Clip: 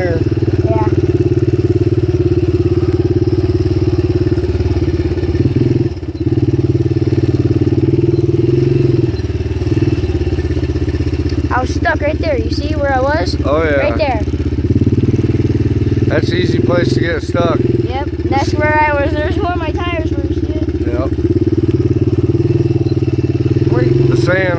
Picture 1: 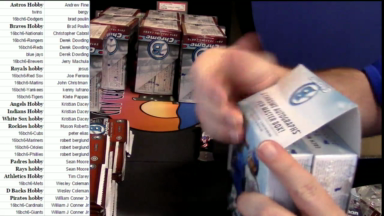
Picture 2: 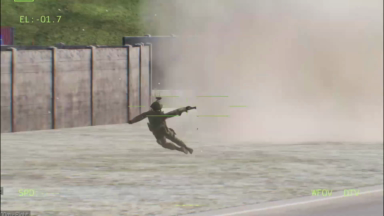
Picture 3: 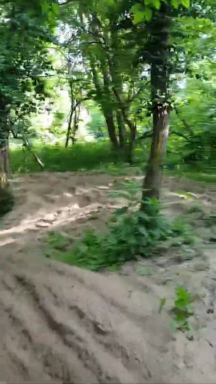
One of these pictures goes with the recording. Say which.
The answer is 3